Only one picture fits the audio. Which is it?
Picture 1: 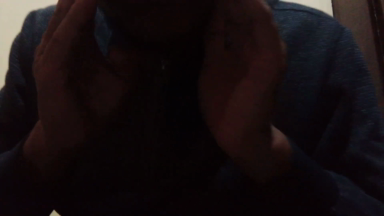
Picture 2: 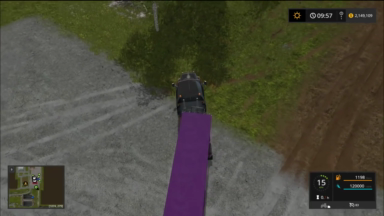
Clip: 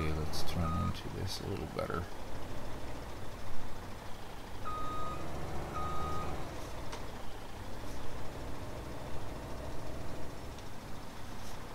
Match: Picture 2